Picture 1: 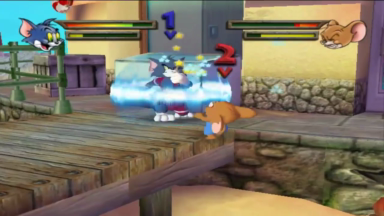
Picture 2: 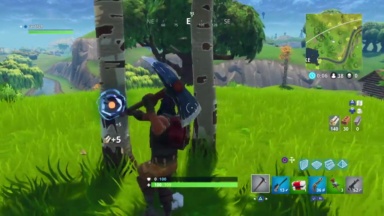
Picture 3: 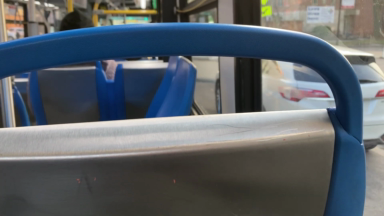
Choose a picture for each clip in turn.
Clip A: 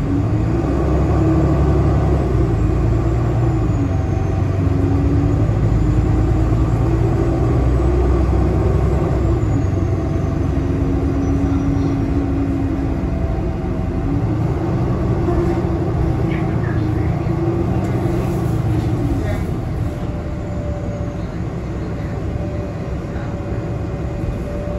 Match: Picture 3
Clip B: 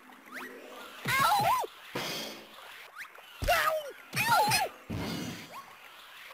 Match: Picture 1